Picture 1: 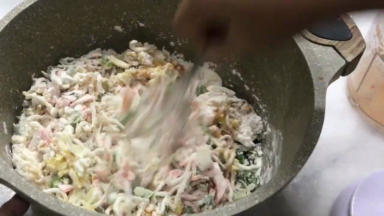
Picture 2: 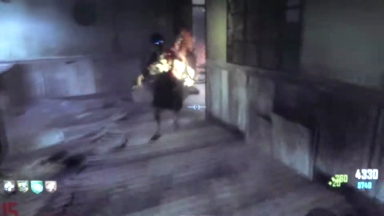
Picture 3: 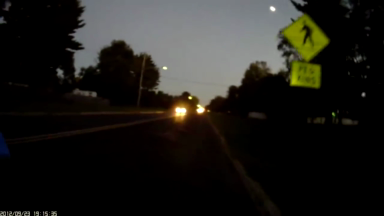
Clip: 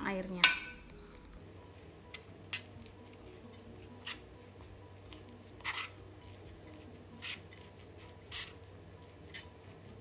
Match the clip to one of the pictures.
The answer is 1